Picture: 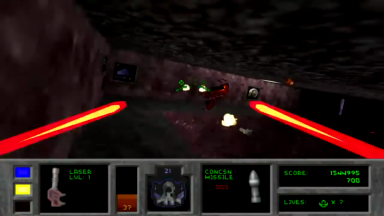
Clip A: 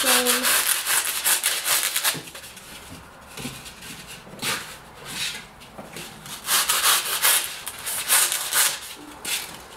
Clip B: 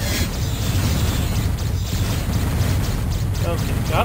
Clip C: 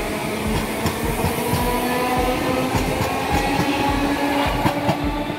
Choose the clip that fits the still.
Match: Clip B